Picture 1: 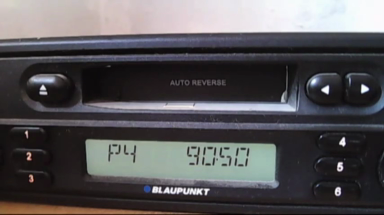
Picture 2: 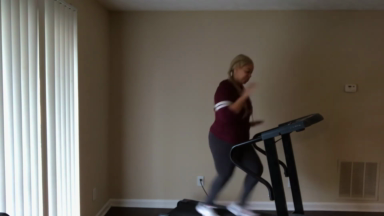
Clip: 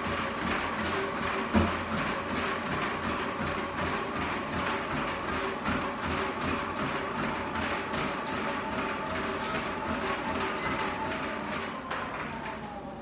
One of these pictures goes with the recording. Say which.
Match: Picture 2